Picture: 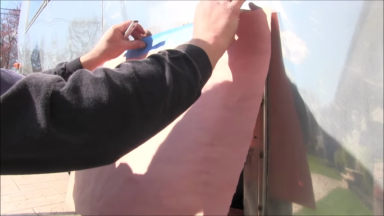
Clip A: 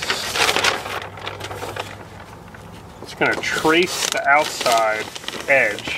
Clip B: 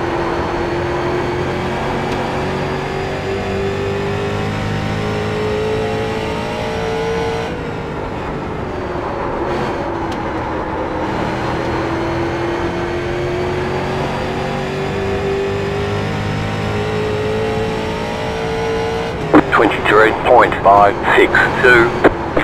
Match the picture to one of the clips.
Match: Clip A